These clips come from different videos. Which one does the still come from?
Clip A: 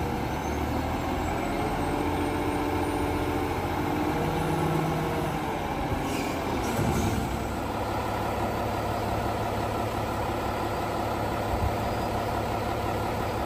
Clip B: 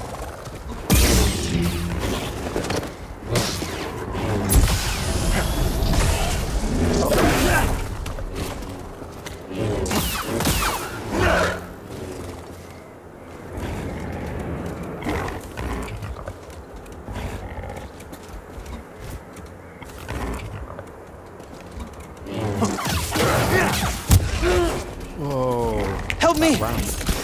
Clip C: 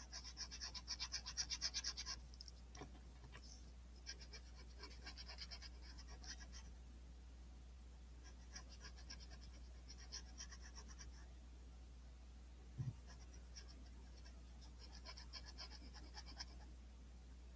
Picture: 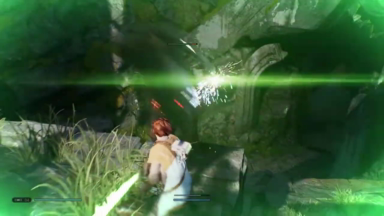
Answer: B